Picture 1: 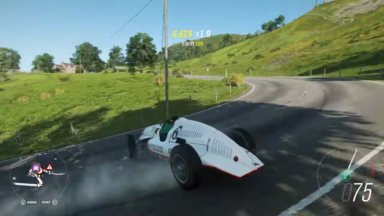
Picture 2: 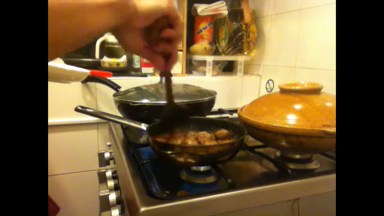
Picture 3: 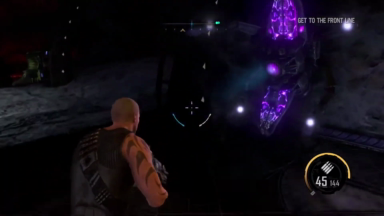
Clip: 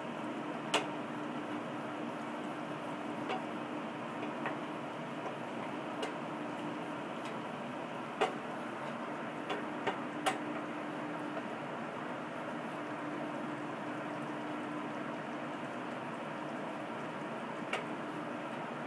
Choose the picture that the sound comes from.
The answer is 2